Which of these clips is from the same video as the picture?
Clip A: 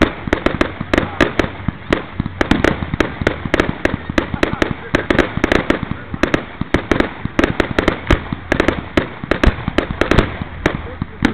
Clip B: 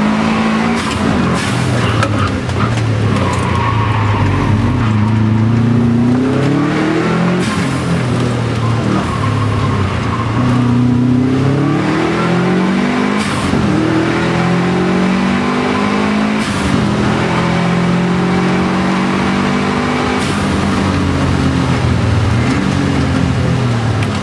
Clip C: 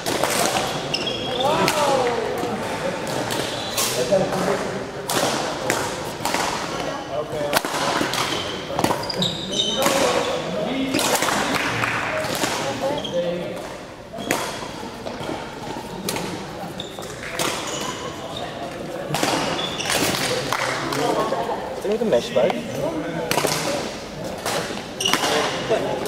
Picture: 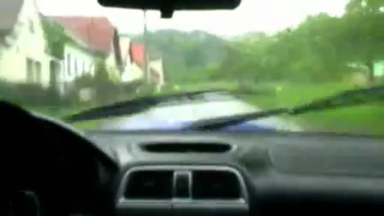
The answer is B